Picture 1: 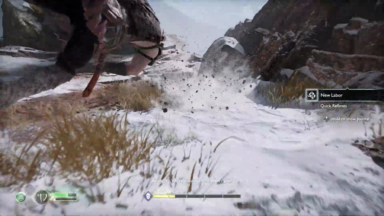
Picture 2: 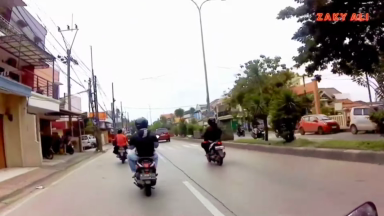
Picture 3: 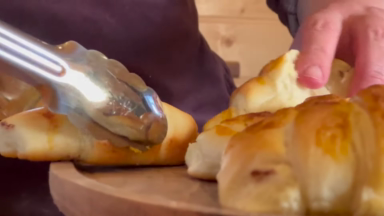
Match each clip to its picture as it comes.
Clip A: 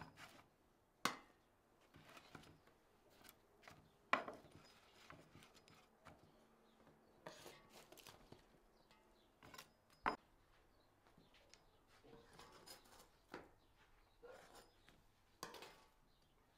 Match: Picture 3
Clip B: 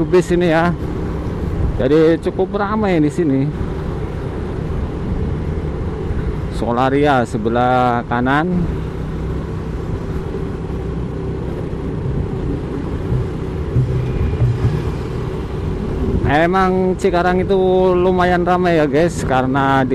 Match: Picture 2